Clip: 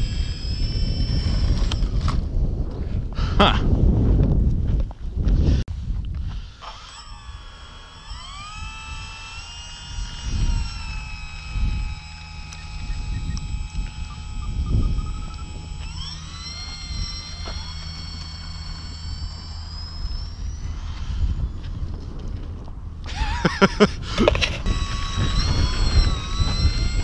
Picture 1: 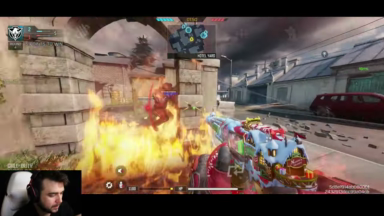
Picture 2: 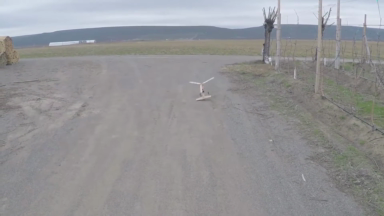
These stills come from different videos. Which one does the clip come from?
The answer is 2